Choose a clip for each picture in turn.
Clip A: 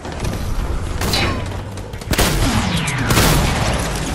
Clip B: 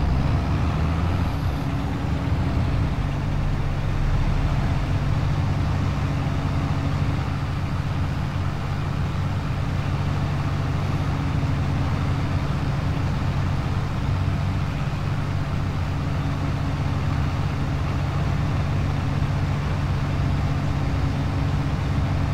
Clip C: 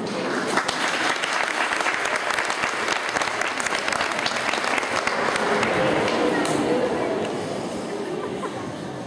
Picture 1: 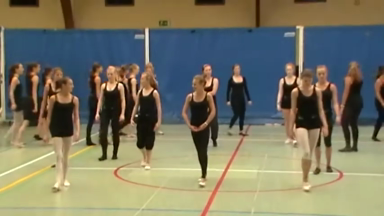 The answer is C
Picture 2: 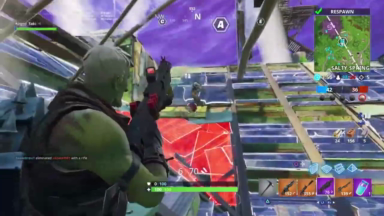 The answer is A